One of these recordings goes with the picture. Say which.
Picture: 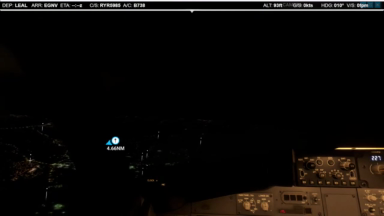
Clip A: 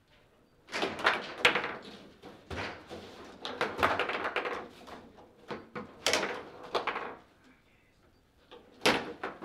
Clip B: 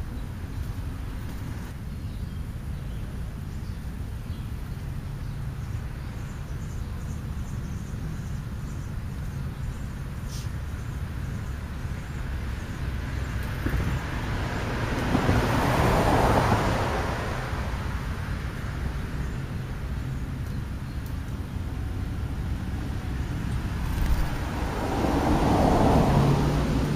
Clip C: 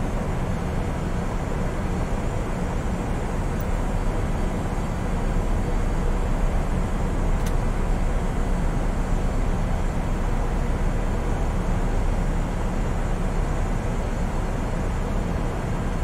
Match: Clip C